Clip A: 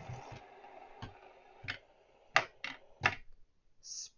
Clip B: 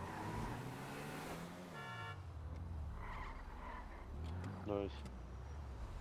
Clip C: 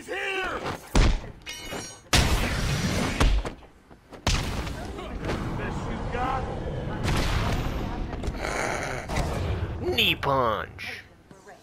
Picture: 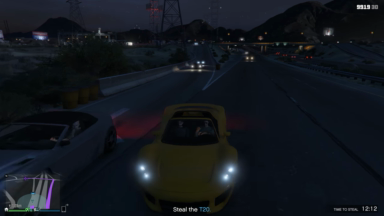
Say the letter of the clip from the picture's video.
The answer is B